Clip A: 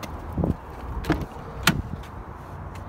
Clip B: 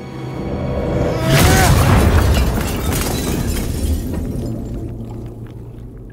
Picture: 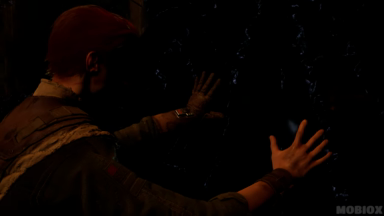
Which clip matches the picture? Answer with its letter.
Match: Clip B